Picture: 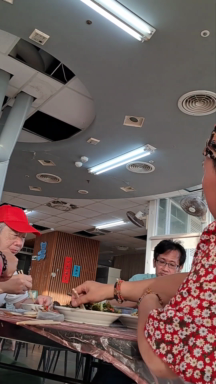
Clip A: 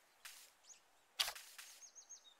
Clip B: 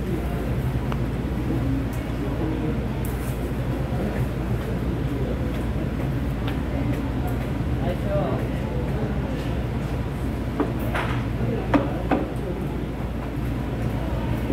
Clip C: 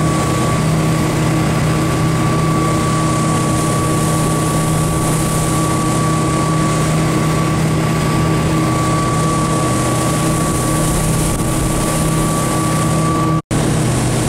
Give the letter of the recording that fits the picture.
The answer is B